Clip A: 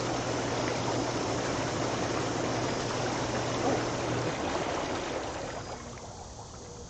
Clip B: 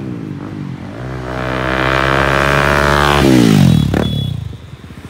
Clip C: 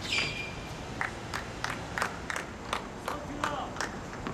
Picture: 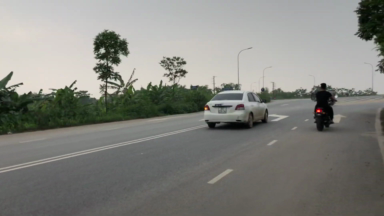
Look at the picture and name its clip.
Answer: B